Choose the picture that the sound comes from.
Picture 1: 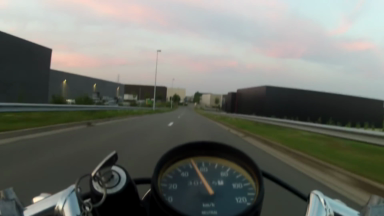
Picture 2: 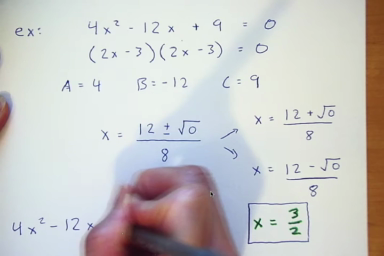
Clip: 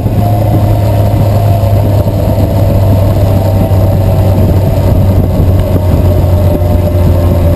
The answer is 1